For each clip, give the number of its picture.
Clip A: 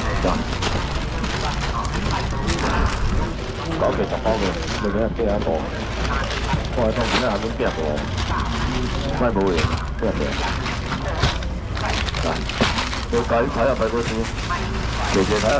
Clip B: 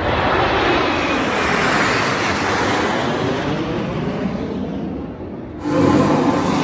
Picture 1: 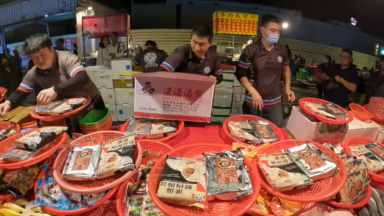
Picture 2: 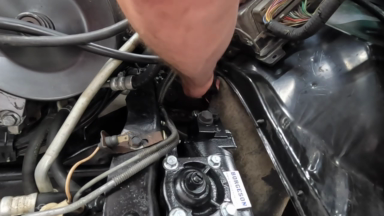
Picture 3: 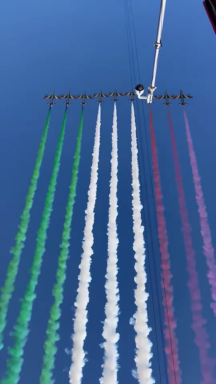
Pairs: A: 1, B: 3